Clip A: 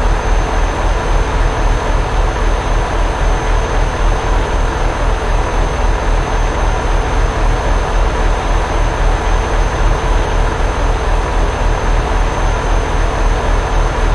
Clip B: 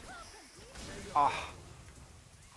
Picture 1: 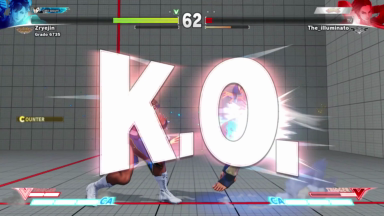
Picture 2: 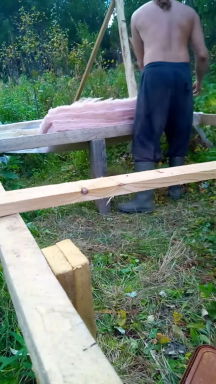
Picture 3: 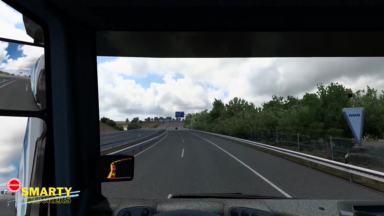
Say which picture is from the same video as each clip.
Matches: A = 3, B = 1